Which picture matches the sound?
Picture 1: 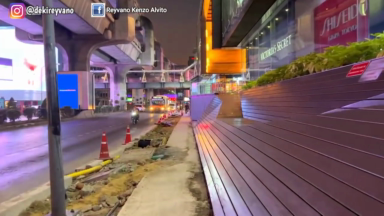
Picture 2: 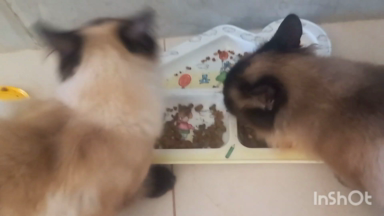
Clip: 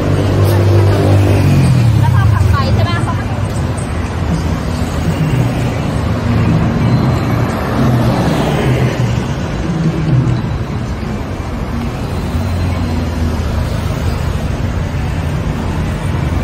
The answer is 1